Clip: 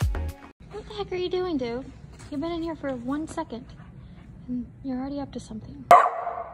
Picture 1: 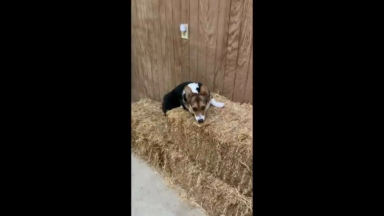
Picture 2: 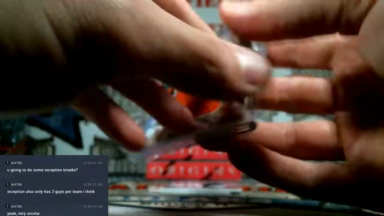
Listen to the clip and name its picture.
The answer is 1